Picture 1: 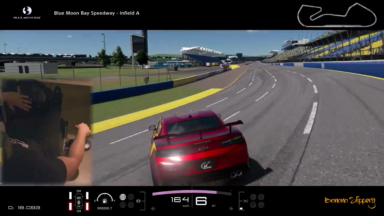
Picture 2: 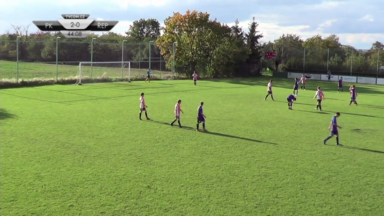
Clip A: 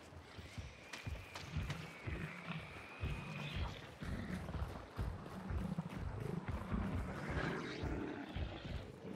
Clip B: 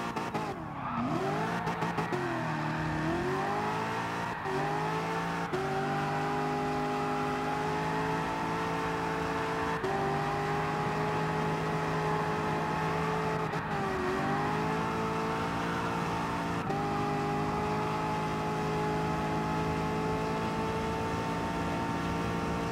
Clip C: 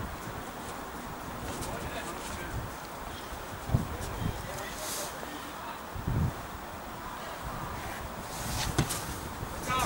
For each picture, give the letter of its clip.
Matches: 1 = B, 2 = C